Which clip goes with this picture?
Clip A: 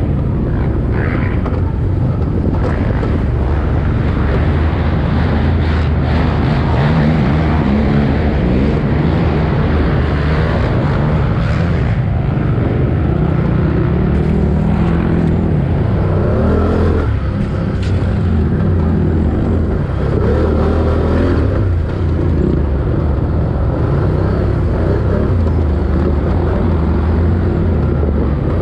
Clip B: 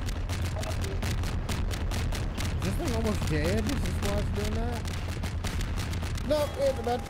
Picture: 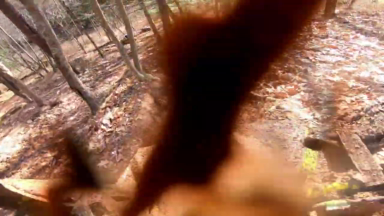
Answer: A